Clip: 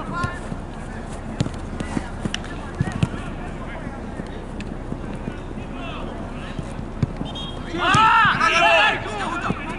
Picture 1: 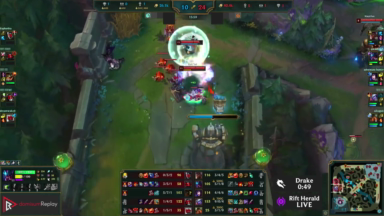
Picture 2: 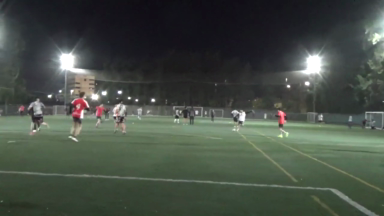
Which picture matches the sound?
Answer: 2